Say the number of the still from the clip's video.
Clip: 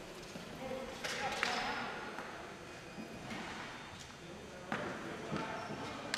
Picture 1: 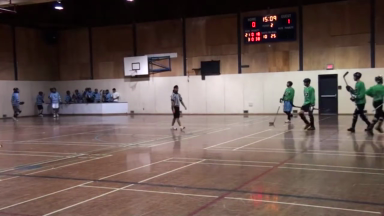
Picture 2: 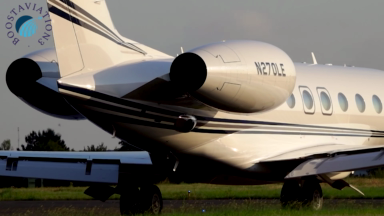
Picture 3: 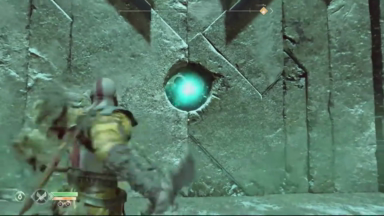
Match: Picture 1